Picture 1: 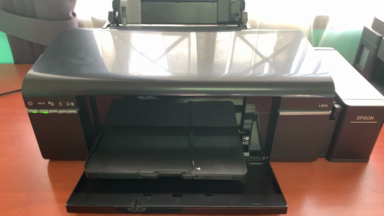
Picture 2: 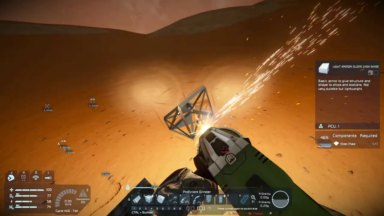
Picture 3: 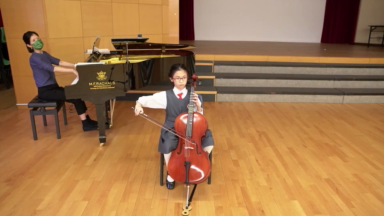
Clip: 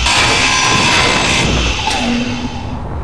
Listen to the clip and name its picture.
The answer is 2